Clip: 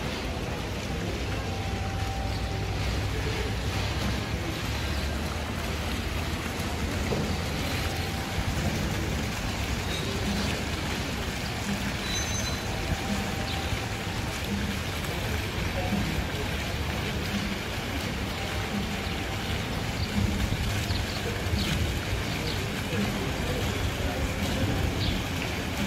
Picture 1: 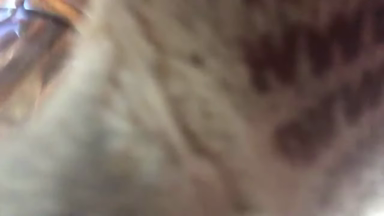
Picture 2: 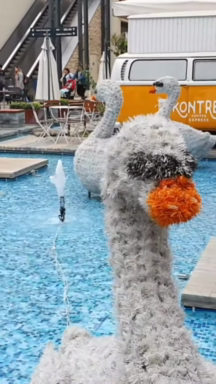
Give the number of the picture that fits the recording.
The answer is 2